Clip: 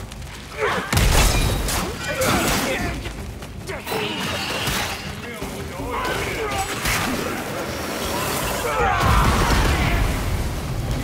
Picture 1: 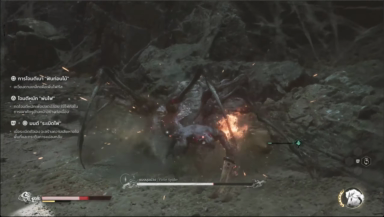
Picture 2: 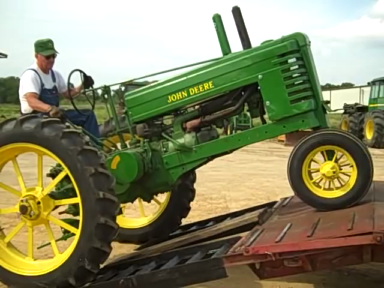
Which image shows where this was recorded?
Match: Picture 1